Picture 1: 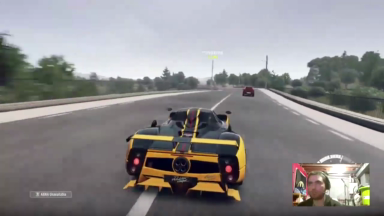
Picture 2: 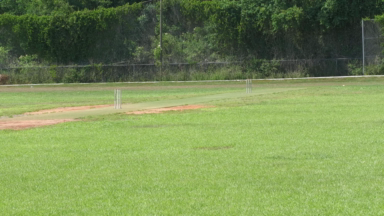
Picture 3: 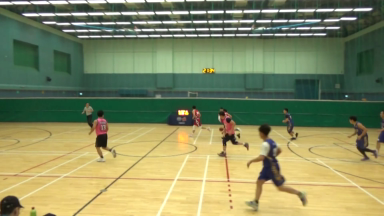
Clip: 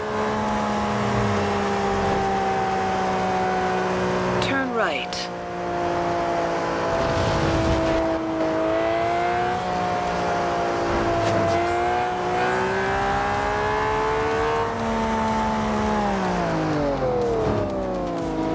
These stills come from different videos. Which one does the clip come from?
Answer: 1